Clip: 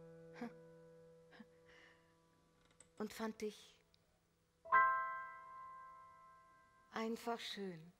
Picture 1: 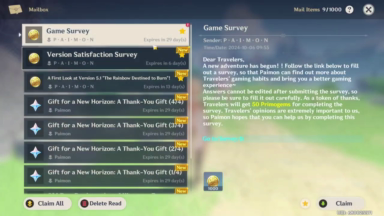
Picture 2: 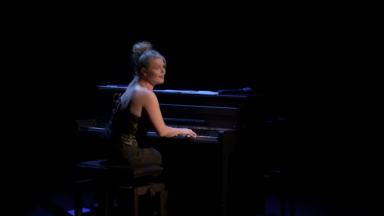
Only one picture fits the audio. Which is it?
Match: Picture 2